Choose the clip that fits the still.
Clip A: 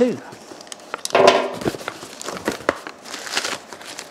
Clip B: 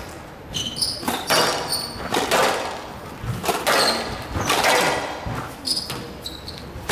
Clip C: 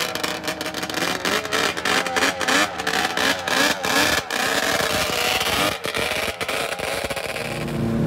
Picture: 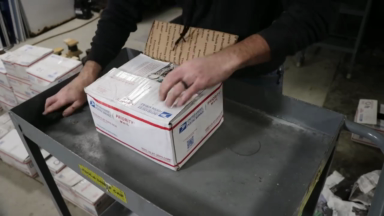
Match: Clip A